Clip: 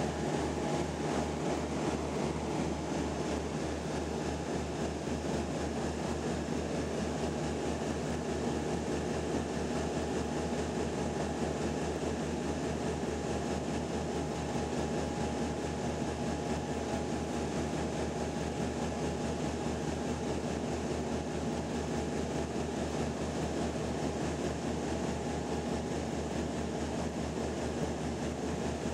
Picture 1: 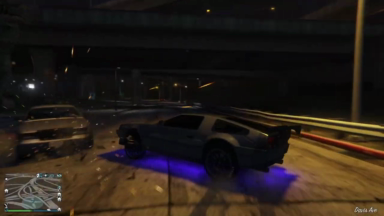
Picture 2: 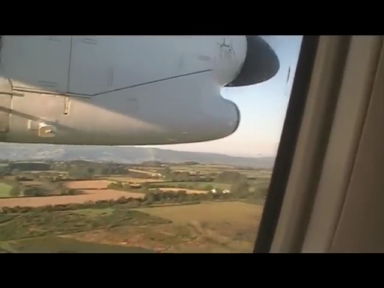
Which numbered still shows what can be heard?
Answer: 2